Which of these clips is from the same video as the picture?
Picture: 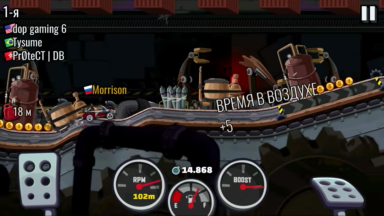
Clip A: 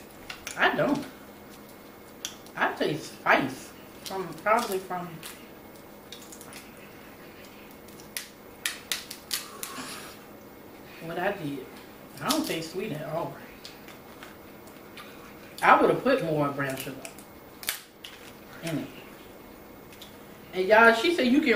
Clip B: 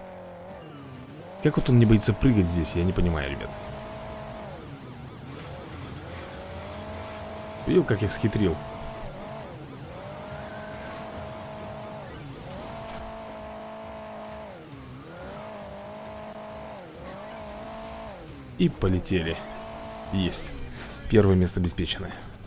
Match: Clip B